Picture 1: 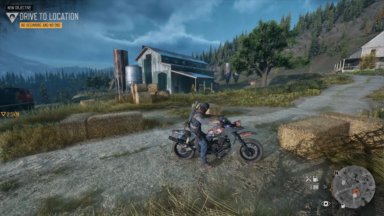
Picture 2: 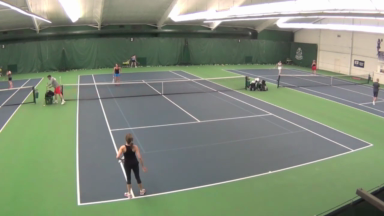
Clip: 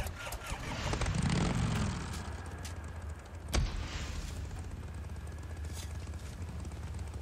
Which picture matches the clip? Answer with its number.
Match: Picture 1